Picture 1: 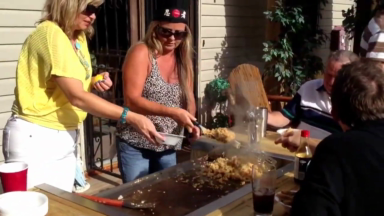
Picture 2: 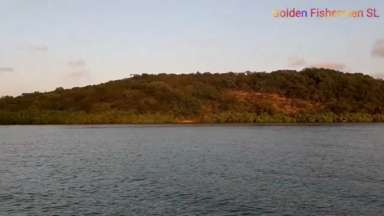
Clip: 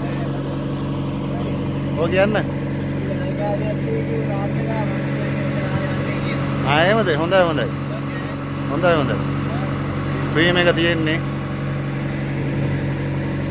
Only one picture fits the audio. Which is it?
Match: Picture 2